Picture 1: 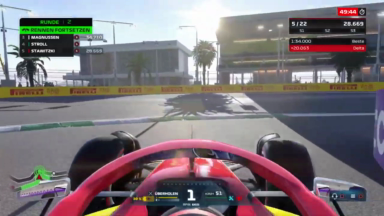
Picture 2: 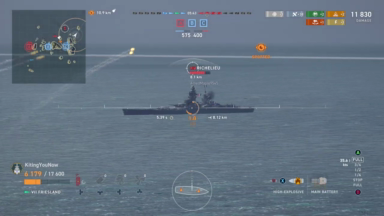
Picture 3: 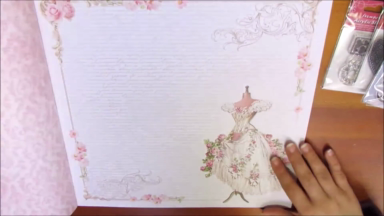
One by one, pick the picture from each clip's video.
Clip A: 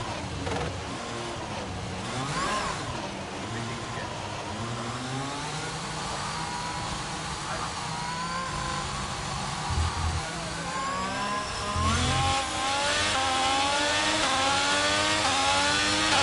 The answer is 1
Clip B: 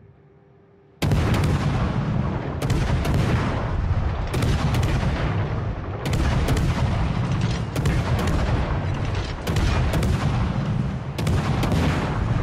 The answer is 2